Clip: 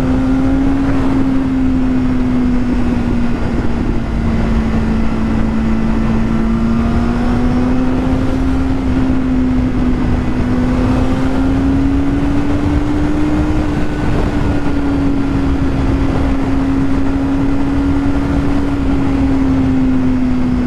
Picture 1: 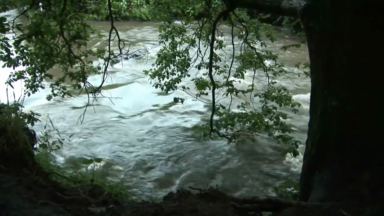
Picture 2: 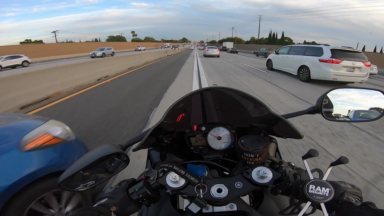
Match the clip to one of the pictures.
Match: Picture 2